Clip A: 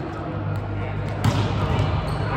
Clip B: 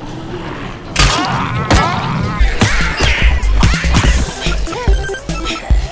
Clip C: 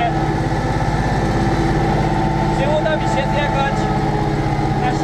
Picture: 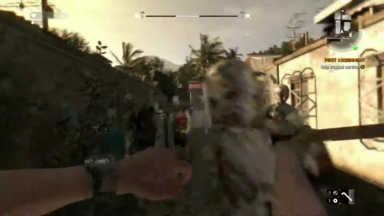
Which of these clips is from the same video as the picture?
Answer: B